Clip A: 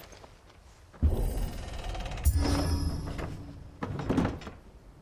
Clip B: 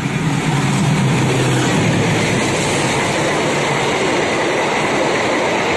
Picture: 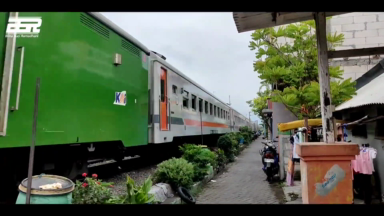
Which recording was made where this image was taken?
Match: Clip B